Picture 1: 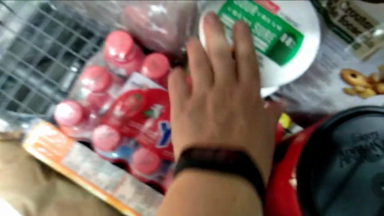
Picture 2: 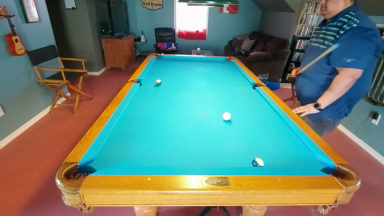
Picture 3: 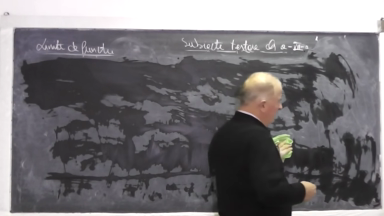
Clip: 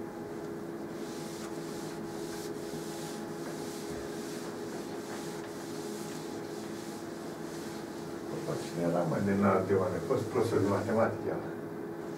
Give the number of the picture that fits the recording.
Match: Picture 3